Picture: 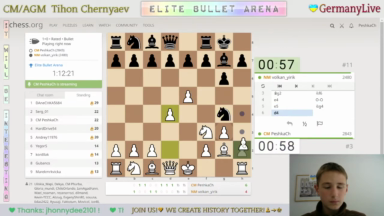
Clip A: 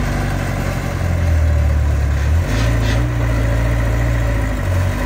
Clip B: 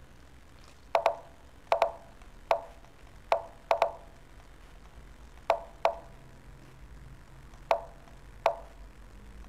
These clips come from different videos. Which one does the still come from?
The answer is B